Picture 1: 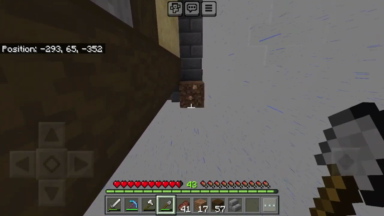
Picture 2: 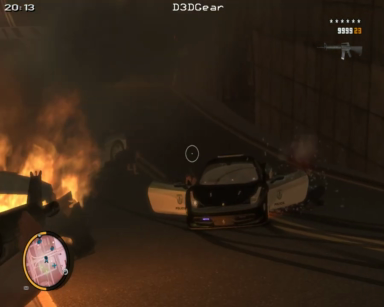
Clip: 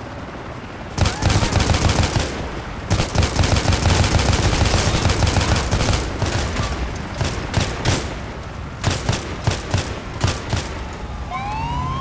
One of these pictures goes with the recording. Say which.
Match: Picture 2